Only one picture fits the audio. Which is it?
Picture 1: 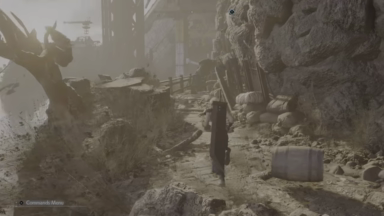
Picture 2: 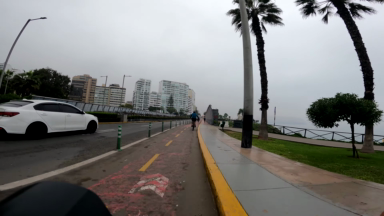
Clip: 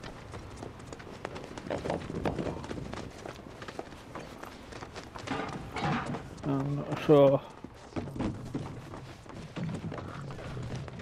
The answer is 1